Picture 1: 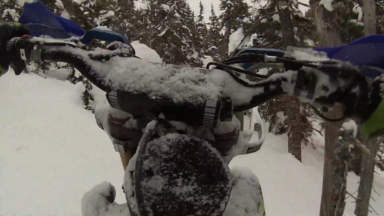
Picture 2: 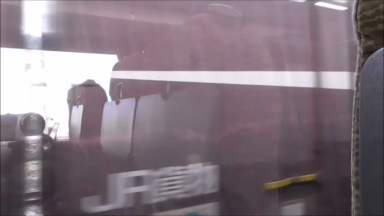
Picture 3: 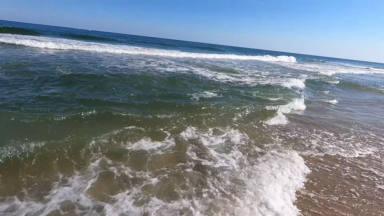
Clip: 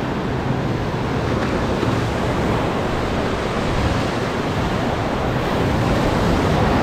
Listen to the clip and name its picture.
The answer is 3